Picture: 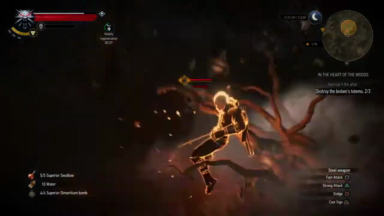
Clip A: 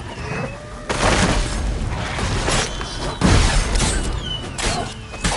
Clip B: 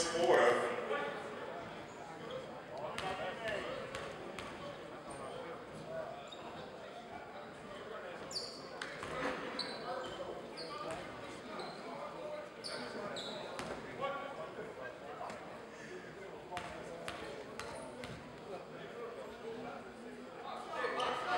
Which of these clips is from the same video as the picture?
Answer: A